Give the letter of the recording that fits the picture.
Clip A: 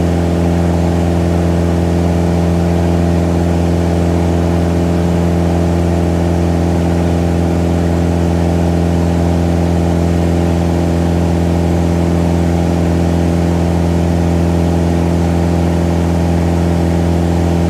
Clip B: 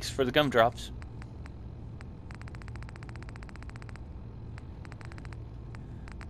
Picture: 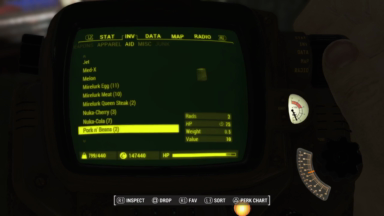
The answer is B